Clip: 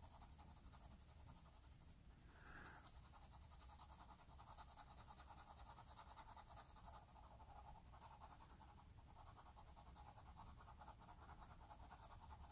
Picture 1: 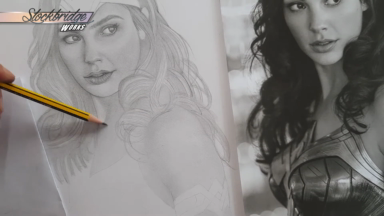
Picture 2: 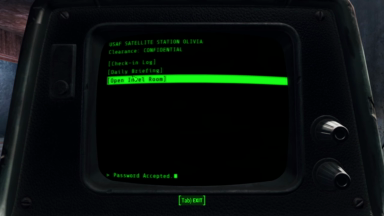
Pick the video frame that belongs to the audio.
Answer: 1